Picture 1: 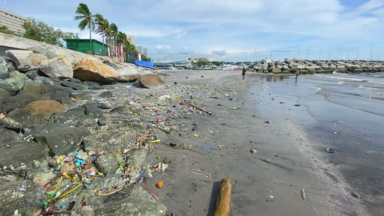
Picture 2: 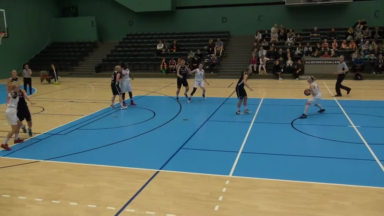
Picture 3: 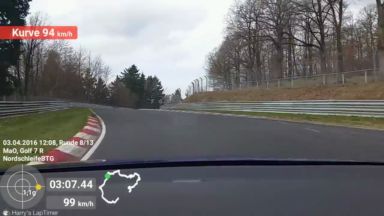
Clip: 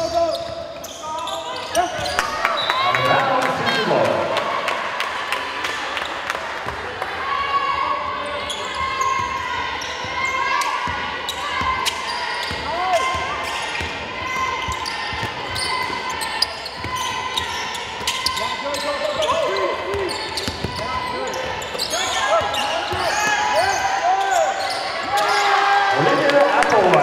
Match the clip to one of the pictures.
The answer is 2